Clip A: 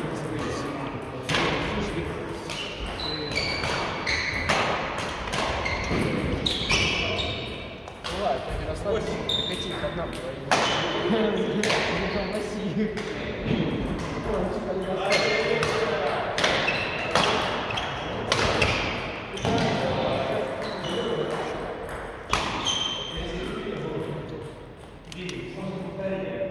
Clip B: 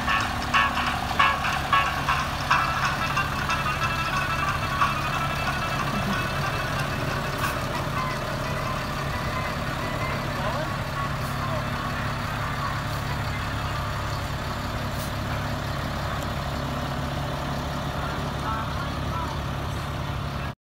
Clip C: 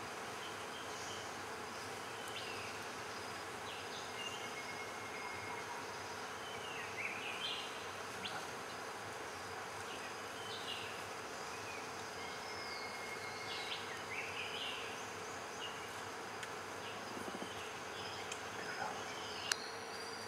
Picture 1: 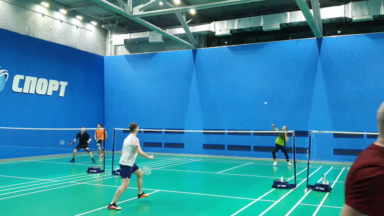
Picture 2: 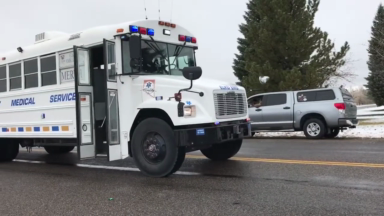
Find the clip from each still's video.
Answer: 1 A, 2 B